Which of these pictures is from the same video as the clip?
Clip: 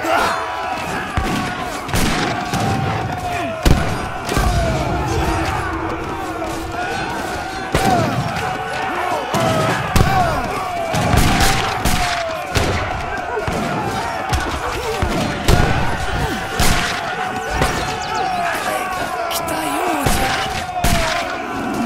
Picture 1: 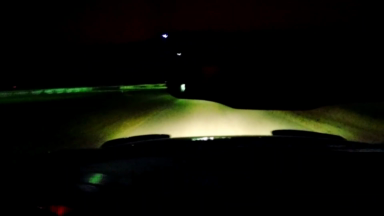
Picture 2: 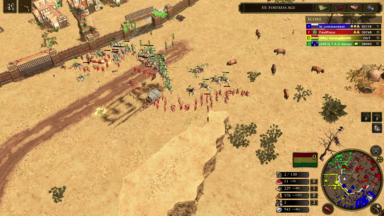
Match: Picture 2